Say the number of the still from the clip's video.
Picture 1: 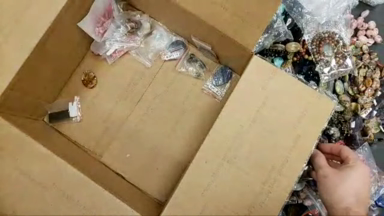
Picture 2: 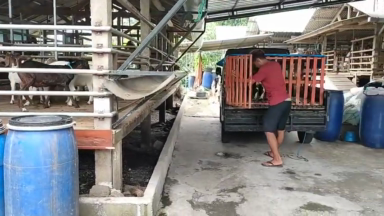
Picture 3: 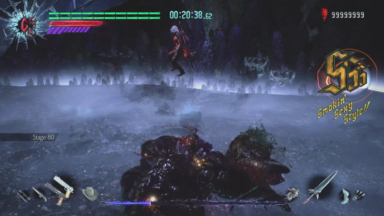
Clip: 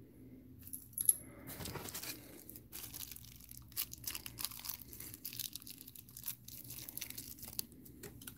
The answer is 1